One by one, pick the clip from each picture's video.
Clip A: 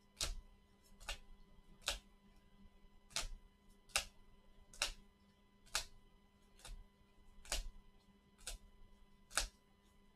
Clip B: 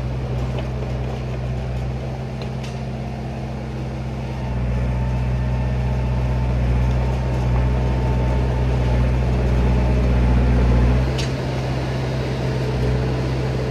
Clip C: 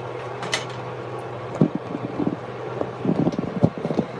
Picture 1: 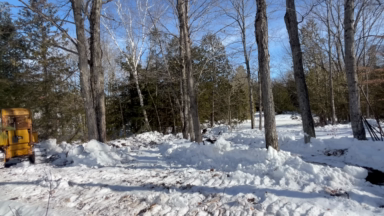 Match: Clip B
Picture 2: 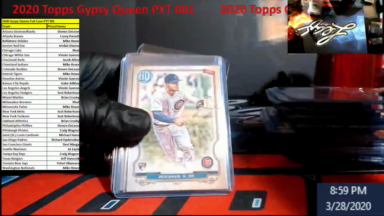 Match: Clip A